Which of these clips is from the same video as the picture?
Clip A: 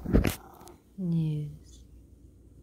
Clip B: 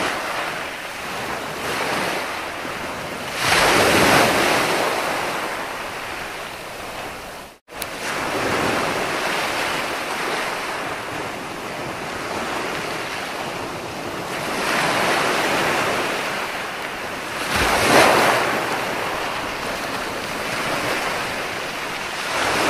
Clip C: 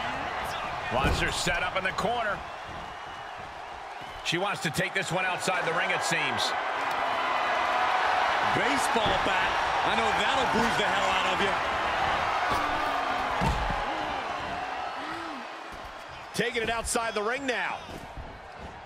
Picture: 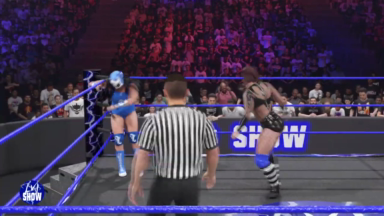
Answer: C